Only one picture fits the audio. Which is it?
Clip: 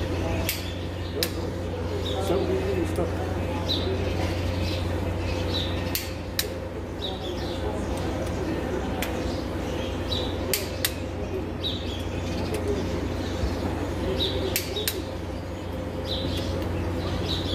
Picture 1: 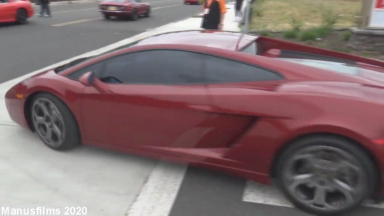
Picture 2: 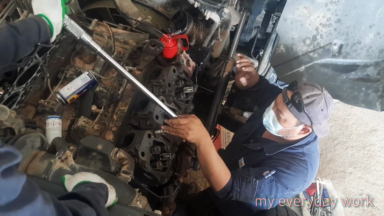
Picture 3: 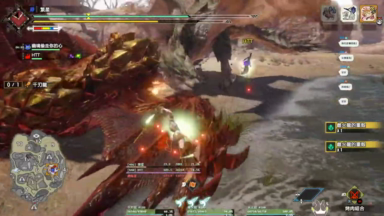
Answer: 2